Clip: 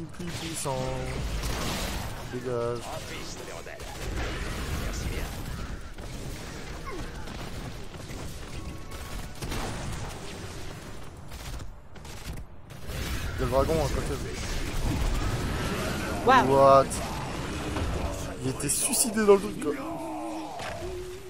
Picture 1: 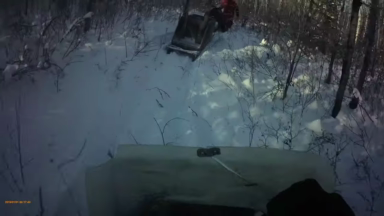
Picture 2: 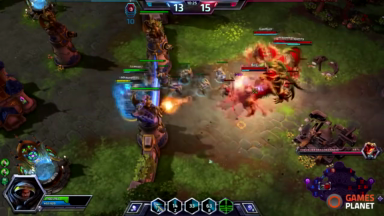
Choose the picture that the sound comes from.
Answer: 2